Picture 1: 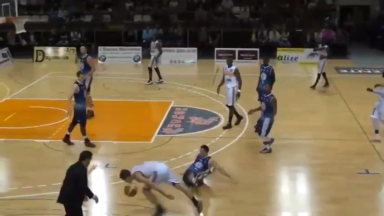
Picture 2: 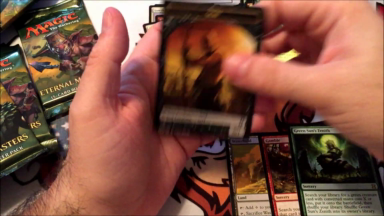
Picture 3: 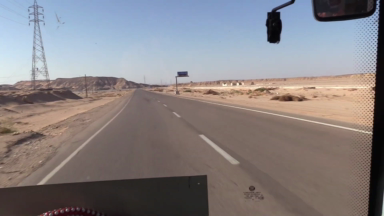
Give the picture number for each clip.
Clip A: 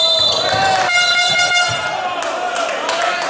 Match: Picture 1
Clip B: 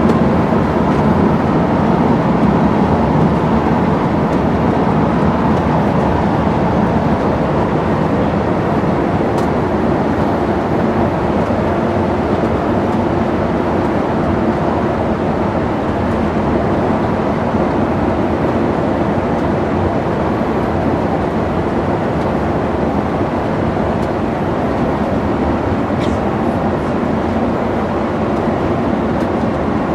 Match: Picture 3